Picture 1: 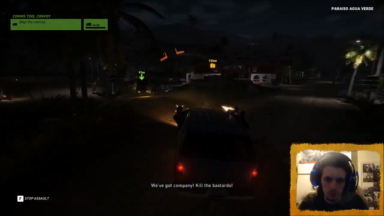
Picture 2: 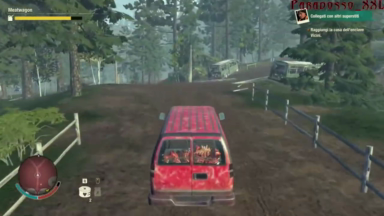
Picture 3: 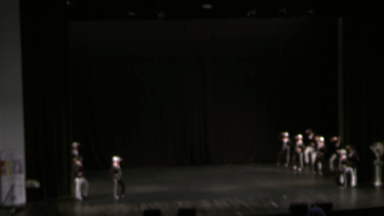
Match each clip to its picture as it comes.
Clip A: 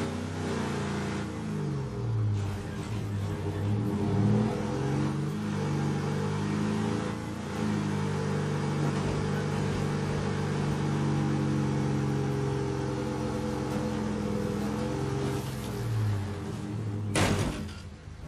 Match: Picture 2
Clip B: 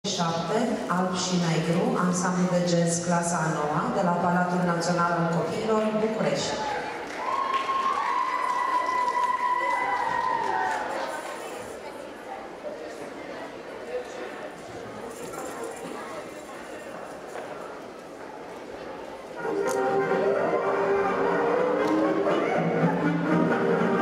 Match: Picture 3